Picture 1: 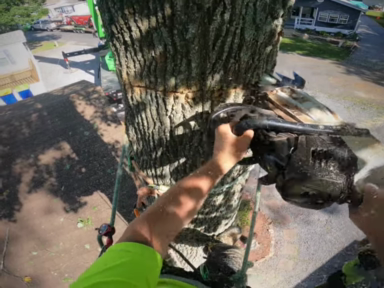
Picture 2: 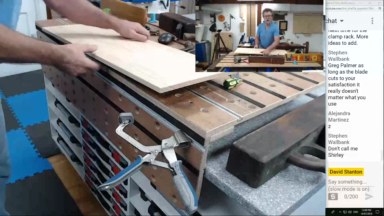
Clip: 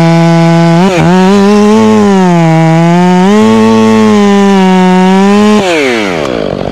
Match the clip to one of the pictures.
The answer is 1